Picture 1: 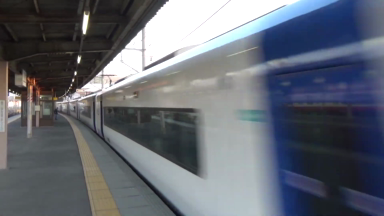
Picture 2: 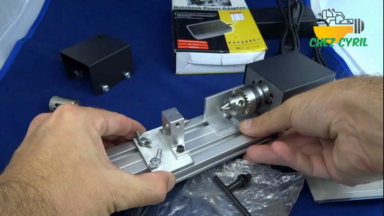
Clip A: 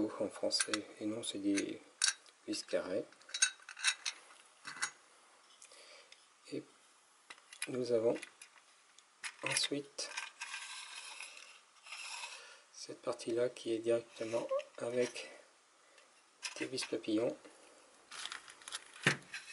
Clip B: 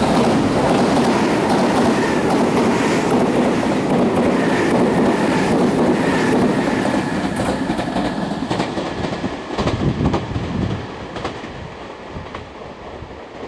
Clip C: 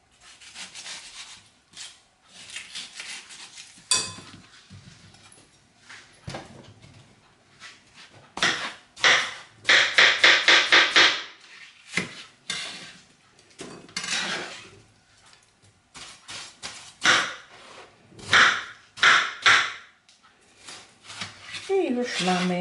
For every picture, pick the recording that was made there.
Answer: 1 B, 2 A